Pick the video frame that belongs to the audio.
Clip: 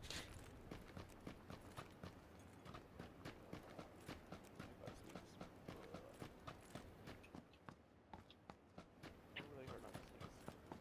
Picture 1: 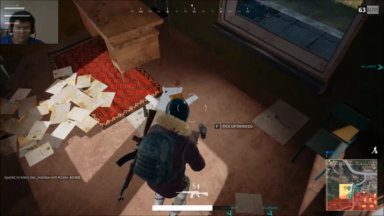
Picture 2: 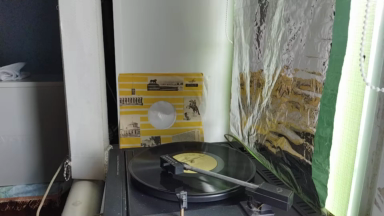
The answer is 1